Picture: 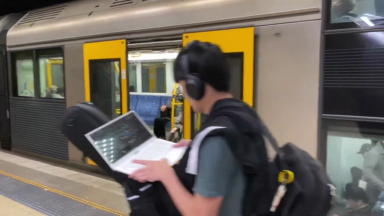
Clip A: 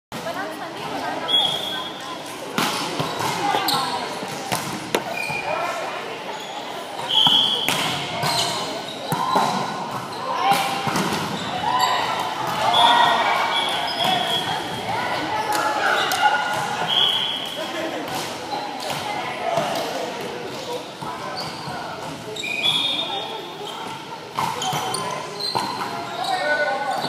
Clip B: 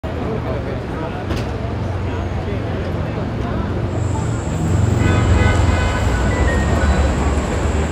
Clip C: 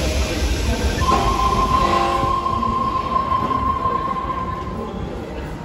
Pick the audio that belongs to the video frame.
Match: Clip C